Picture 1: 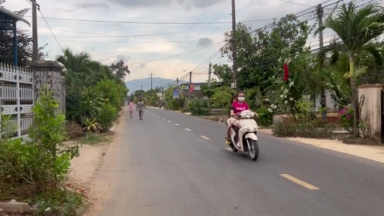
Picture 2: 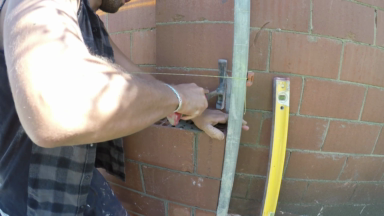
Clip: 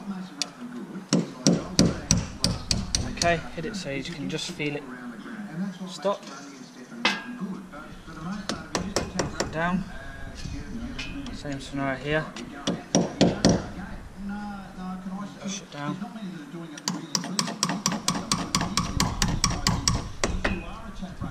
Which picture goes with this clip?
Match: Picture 2